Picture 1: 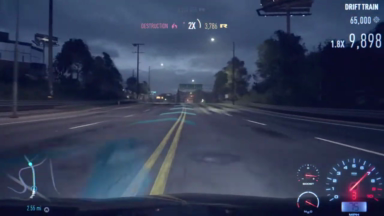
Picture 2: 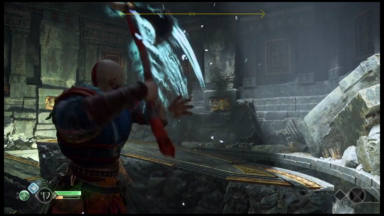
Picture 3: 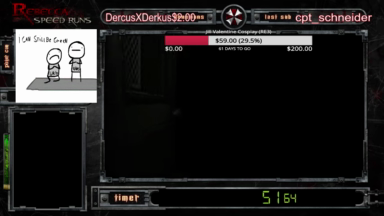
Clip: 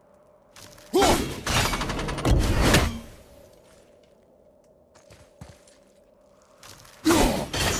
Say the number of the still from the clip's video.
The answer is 2